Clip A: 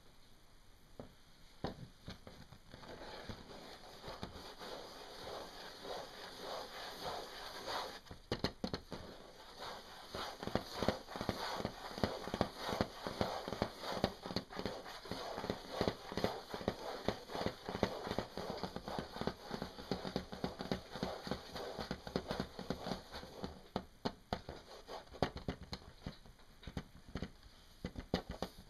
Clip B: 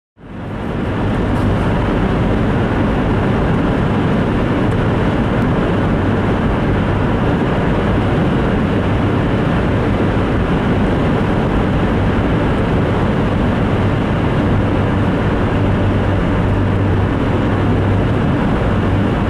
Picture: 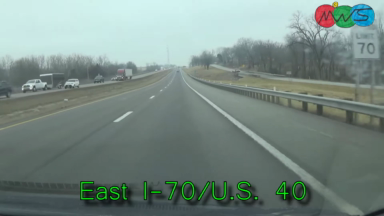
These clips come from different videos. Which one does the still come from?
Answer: B